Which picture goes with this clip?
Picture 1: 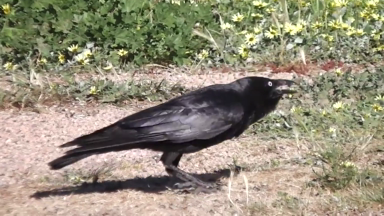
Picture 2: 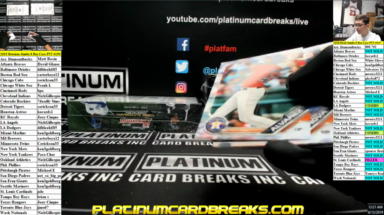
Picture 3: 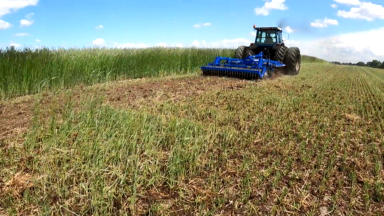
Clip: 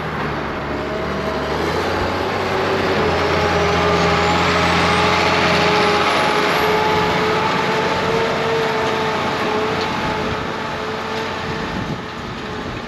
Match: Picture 3